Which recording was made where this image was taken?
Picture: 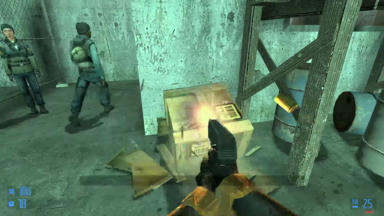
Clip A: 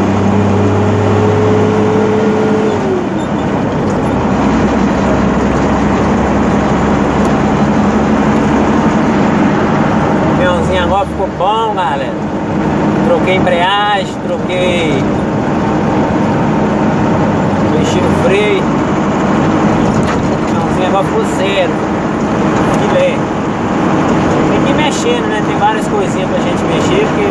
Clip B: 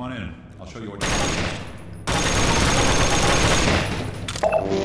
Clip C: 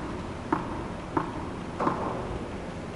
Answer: B